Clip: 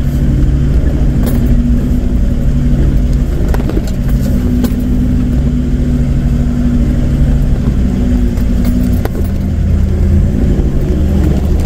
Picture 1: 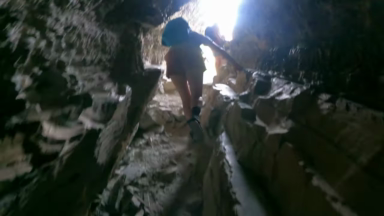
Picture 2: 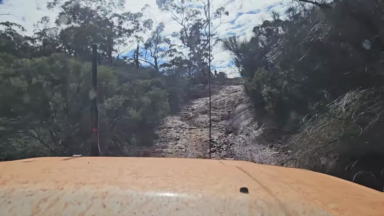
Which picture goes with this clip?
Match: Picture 2